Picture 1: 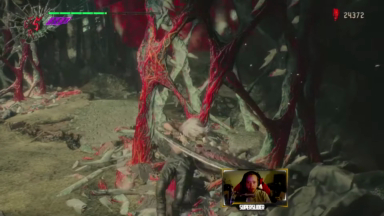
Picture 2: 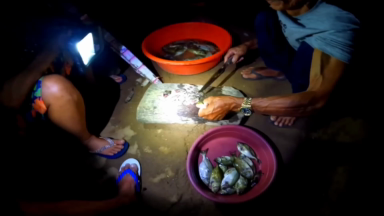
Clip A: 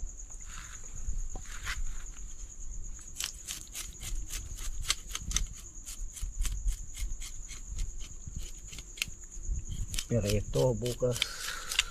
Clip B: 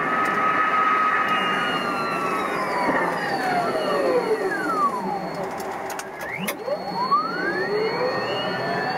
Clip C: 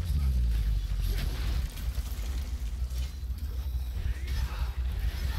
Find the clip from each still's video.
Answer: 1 C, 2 A